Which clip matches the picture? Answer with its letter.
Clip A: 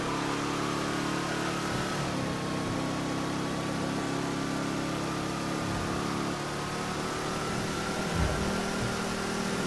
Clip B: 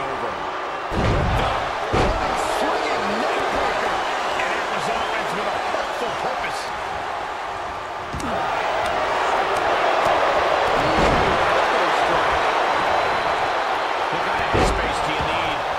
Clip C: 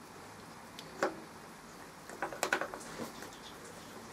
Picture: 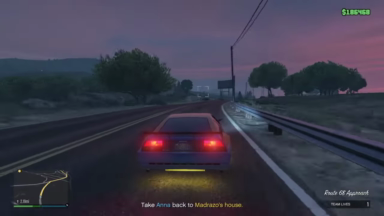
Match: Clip A